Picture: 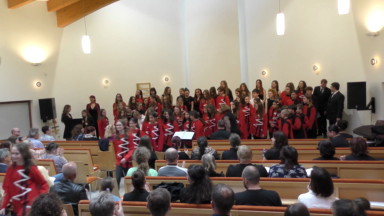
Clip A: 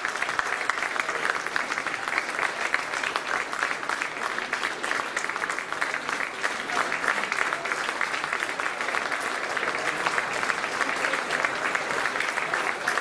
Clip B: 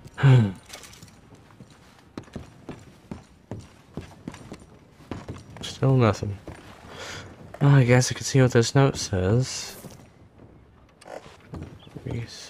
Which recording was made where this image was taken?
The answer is A